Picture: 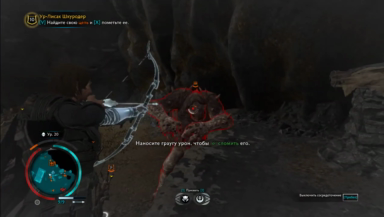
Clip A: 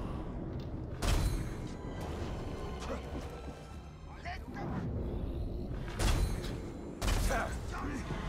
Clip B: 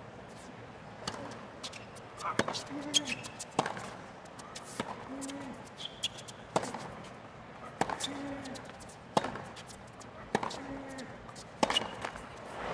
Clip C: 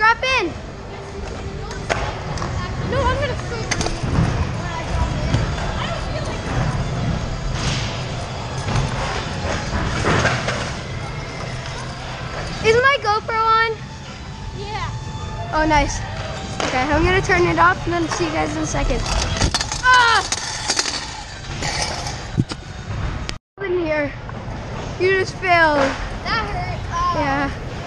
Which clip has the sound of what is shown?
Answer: A